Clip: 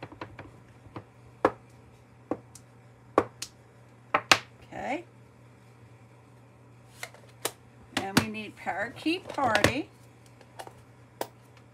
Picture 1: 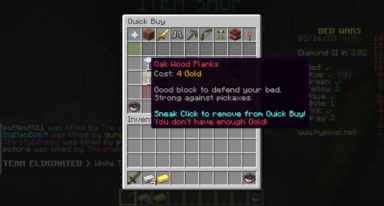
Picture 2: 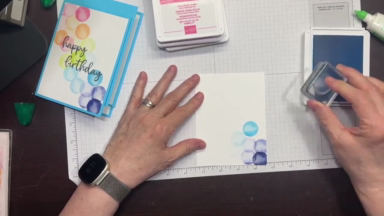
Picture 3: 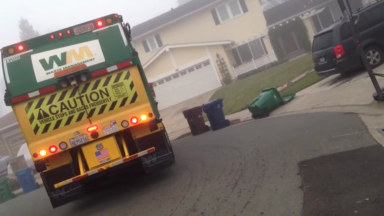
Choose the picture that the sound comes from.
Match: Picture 2